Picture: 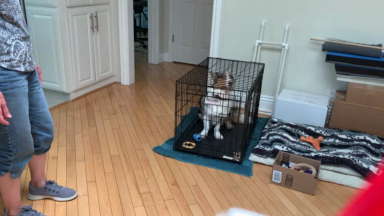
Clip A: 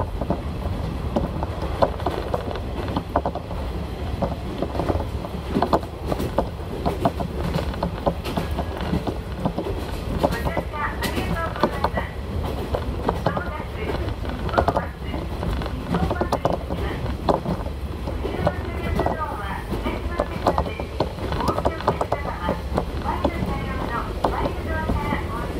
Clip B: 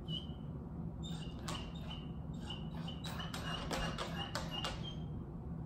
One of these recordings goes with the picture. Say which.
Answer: B